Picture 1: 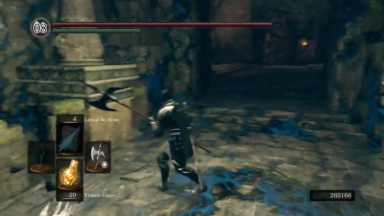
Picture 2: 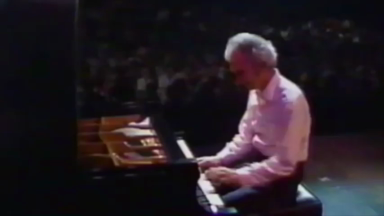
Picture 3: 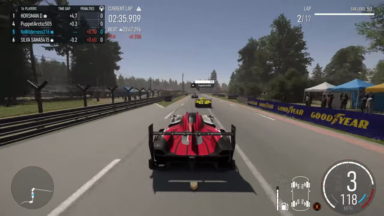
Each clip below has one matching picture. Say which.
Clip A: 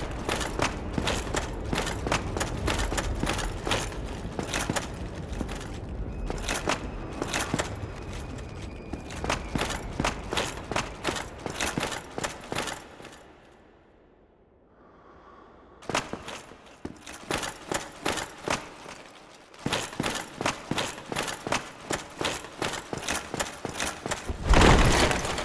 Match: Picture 1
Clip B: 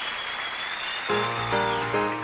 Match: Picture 2